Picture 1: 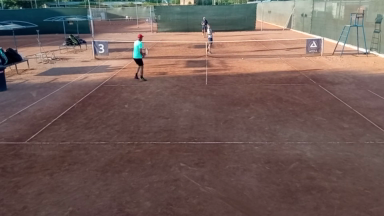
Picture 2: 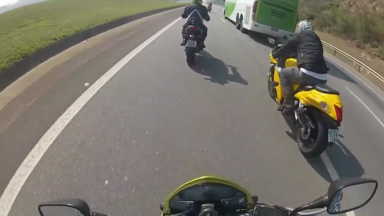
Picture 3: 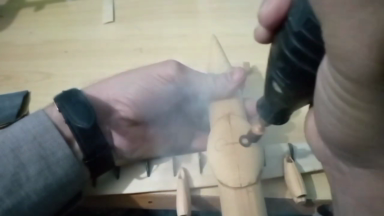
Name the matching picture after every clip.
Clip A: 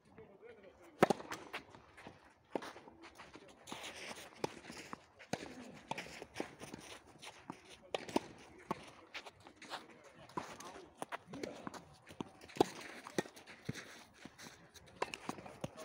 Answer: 1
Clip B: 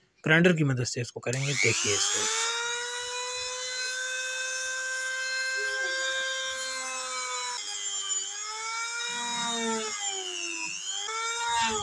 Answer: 3